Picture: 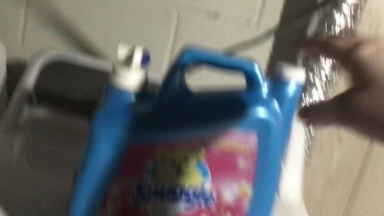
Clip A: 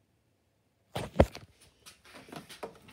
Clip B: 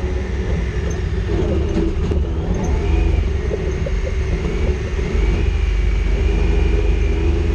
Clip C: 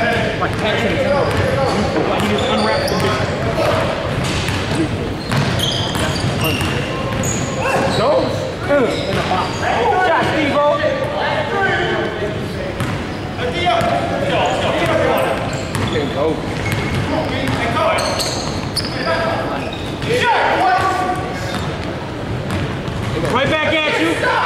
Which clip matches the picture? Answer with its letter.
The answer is A